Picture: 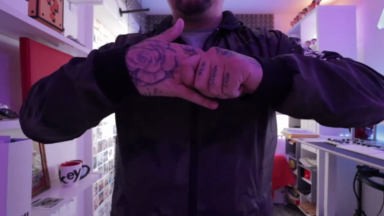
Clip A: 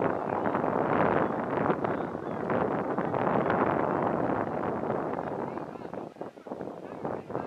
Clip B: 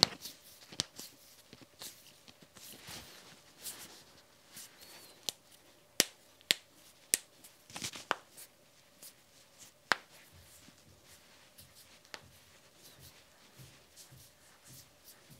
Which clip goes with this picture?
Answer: B